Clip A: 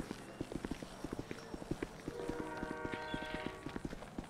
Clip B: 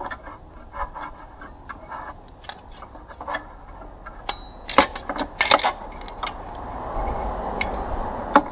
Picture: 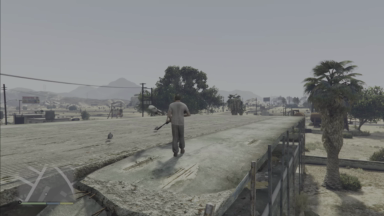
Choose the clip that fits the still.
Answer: A